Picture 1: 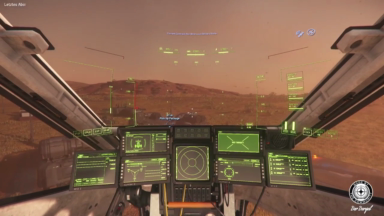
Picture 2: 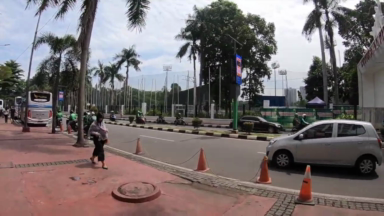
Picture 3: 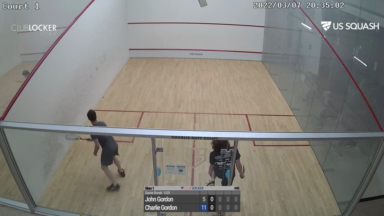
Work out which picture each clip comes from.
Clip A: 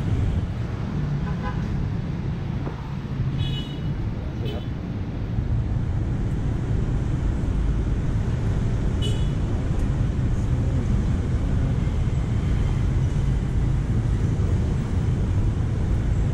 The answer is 2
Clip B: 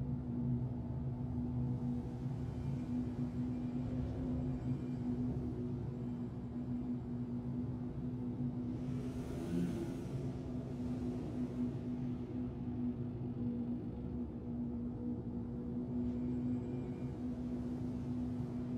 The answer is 1